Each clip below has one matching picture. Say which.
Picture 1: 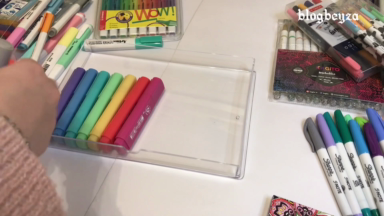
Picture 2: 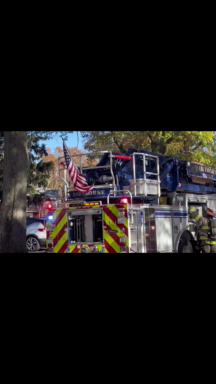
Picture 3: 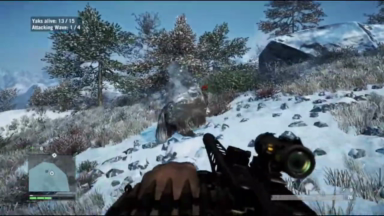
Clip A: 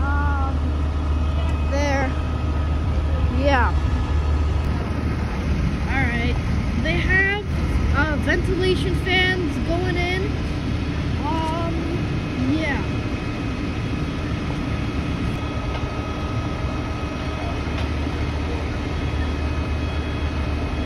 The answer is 2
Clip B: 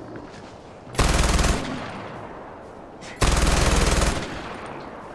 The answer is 3